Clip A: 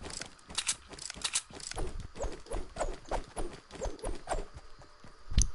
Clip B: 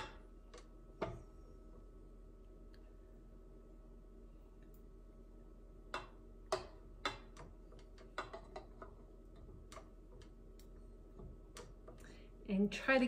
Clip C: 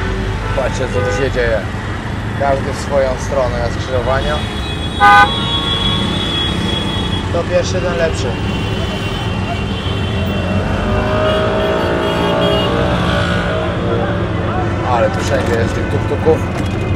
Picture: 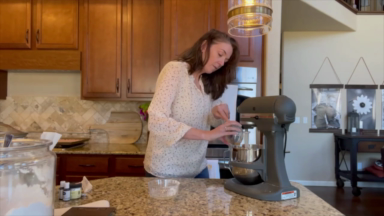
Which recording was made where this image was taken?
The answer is B